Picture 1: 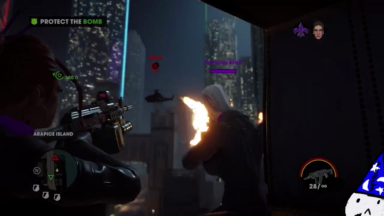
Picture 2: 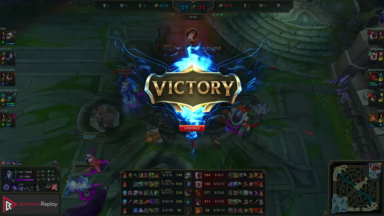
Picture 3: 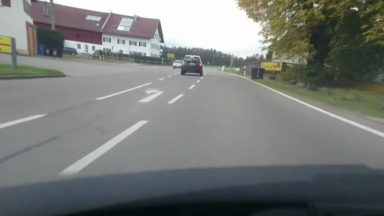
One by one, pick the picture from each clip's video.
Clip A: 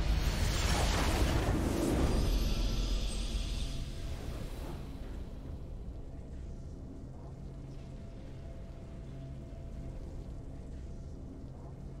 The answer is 2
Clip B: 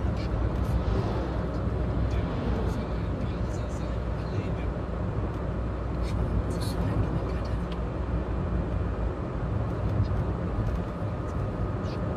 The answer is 3